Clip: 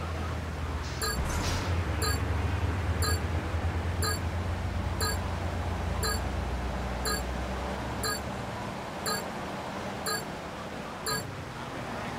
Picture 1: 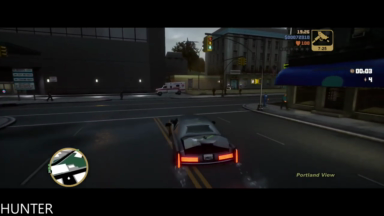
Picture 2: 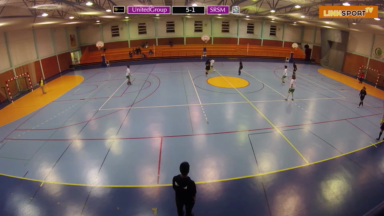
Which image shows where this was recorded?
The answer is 1